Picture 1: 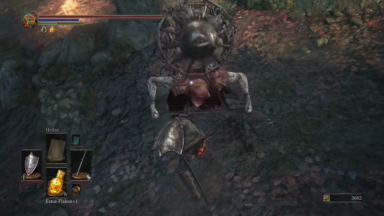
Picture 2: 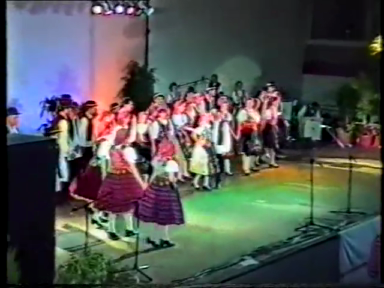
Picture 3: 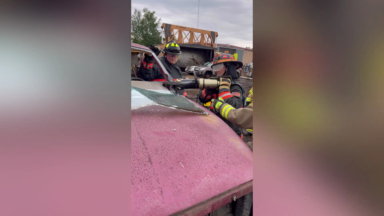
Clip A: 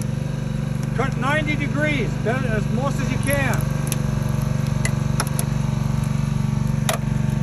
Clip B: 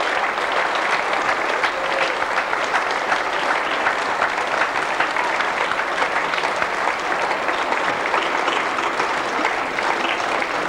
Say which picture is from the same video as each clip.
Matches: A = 3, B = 2